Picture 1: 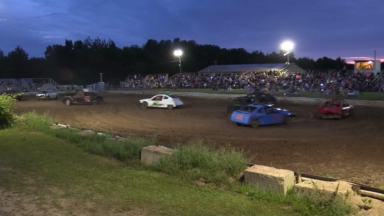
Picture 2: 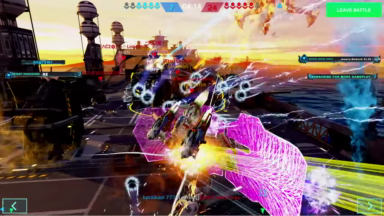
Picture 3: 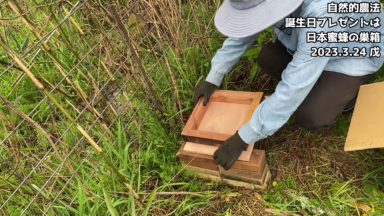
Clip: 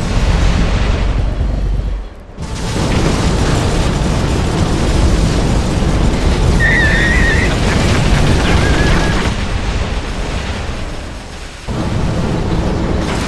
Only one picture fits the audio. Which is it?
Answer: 2